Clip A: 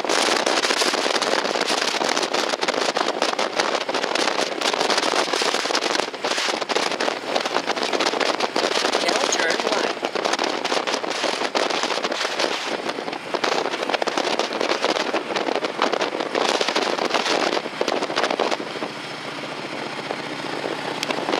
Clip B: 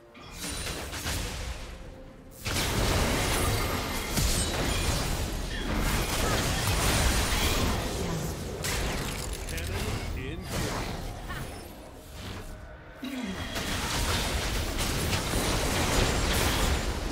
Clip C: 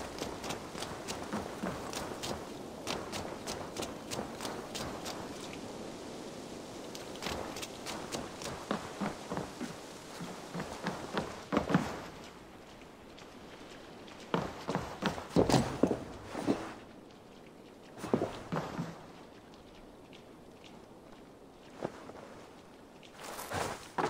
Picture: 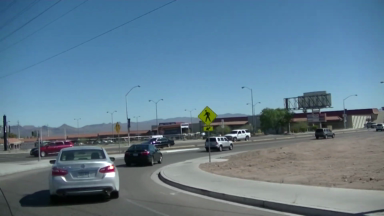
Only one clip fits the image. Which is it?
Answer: A